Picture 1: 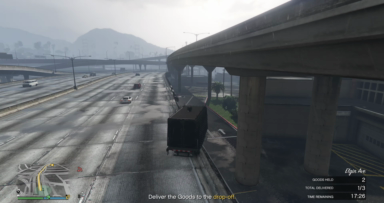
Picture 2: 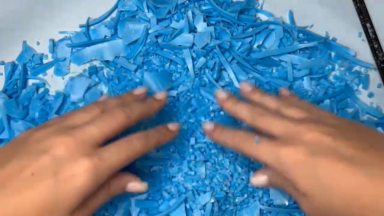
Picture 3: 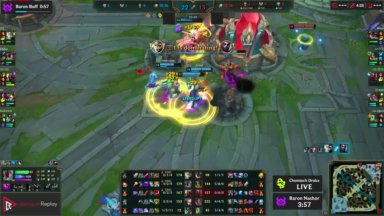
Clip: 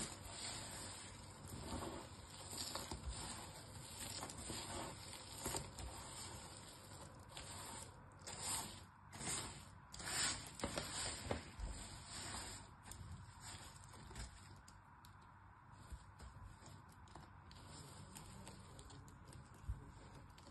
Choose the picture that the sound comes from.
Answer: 2